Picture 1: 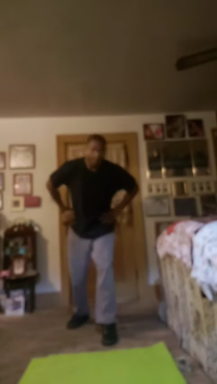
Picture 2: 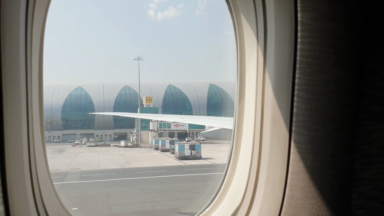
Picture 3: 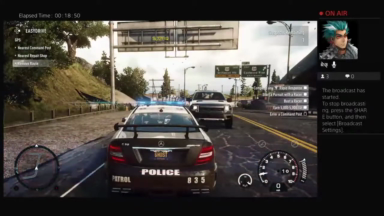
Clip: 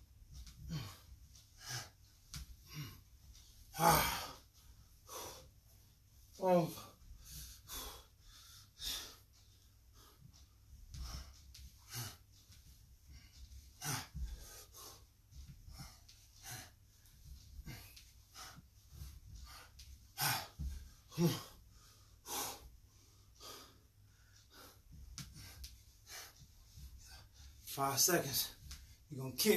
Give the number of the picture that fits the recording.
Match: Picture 1